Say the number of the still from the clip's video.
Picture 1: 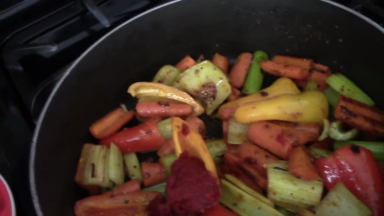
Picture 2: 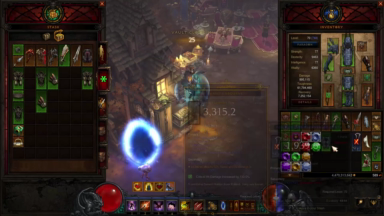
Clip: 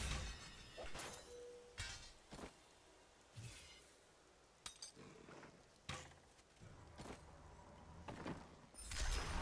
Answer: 2